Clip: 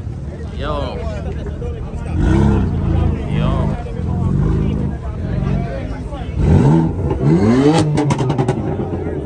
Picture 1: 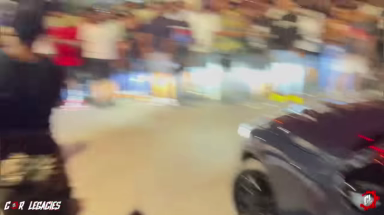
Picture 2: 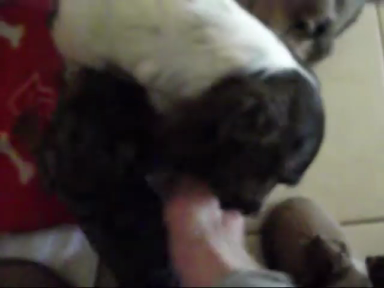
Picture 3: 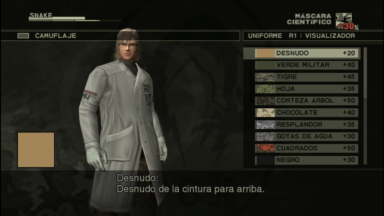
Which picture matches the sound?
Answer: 1